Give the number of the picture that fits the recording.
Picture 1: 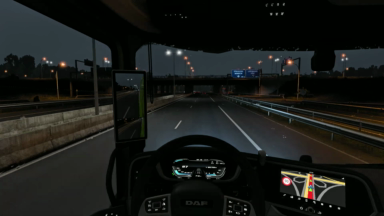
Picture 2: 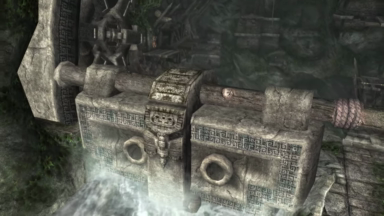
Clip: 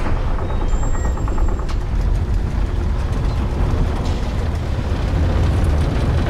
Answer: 2